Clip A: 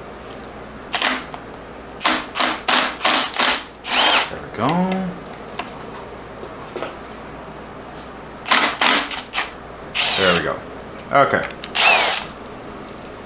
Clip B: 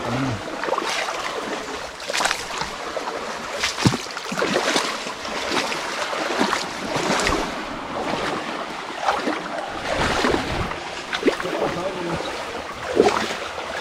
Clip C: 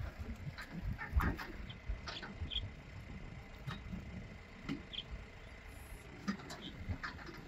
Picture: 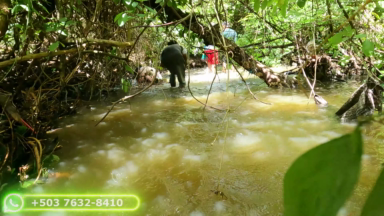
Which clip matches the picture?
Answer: B